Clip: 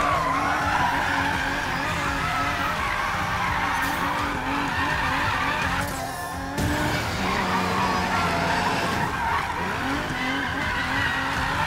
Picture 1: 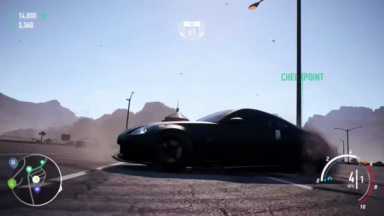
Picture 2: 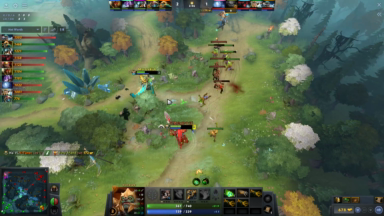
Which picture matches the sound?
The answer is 1